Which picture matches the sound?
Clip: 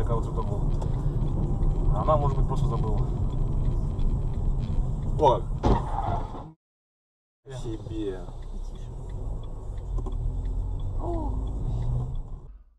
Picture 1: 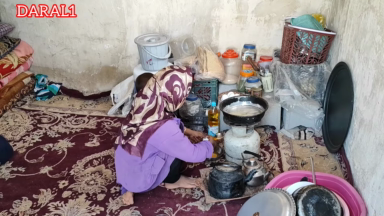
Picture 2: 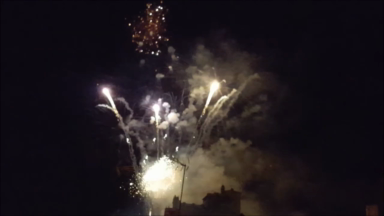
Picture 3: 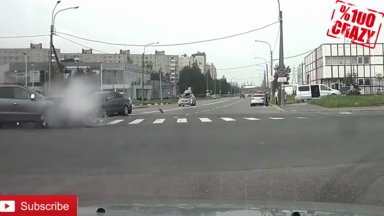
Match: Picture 3